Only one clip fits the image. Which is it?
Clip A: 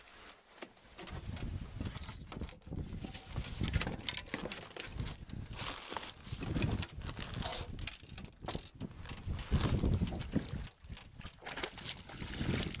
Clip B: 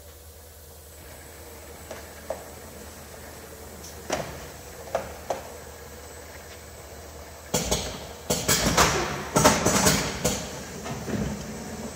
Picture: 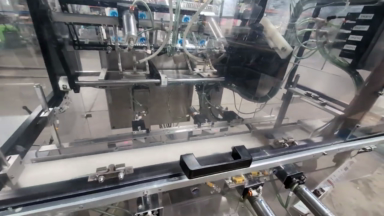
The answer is B